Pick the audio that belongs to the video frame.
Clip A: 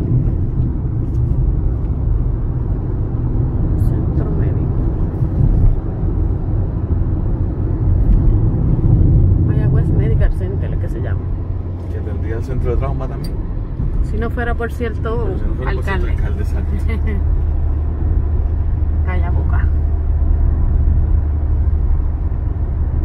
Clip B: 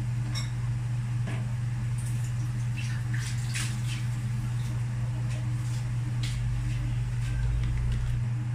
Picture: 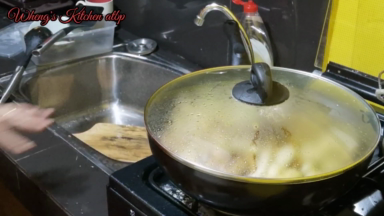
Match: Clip B